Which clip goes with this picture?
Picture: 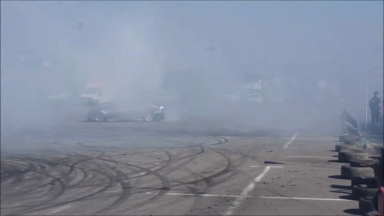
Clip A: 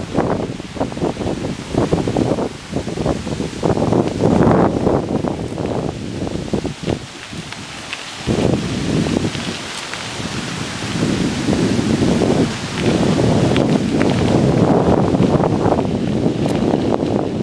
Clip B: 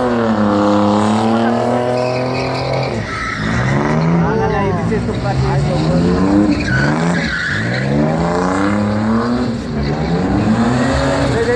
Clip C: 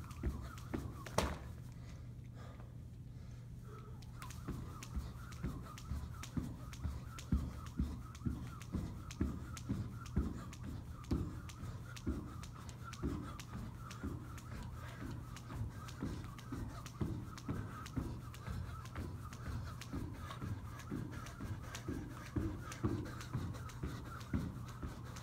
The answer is B